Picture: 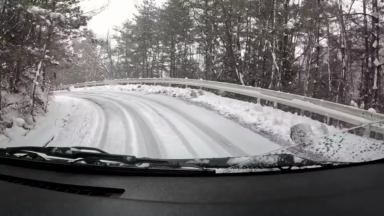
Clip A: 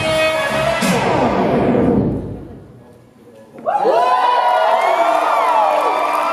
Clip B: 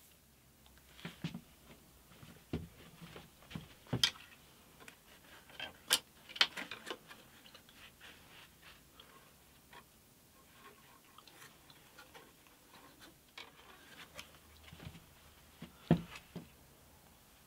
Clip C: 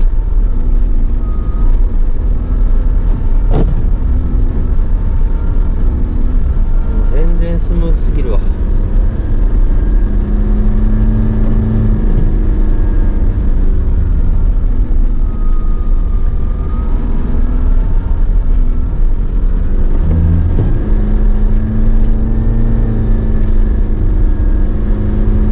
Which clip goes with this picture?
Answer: C